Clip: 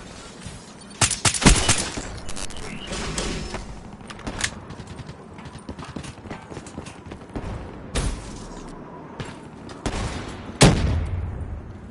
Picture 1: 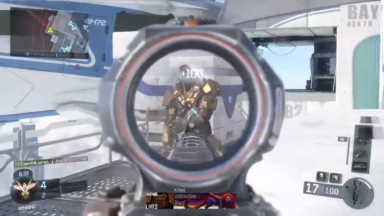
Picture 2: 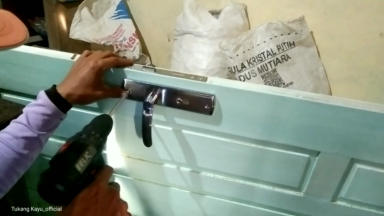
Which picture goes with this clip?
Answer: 1